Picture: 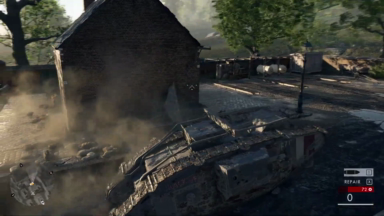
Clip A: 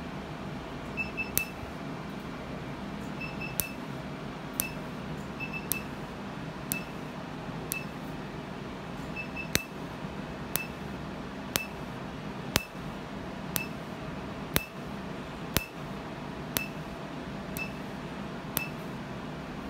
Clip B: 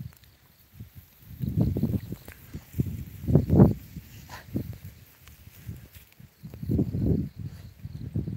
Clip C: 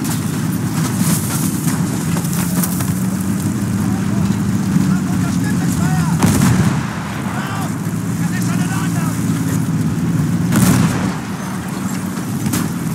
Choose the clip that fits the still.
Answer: C